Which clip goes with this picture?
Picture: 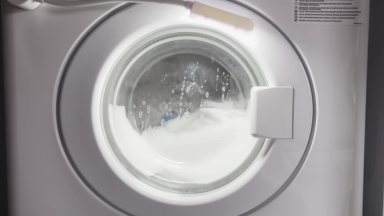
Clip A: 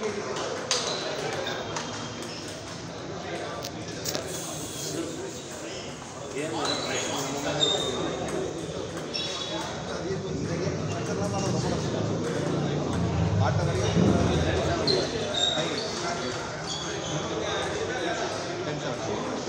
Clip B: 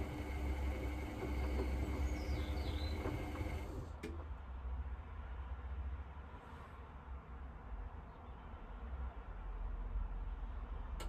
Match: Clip B